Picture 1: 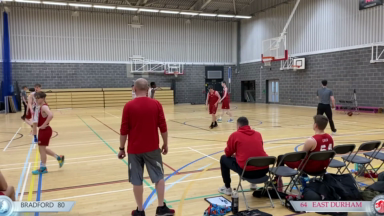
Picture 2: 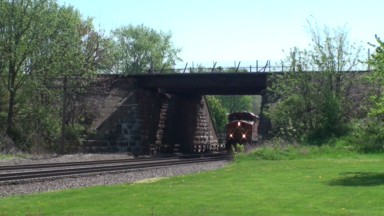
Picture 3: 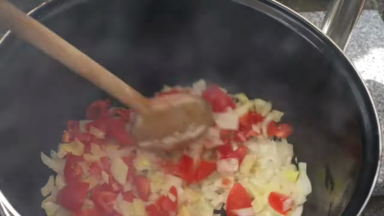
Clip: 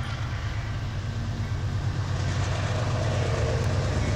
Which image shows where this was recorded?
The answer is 2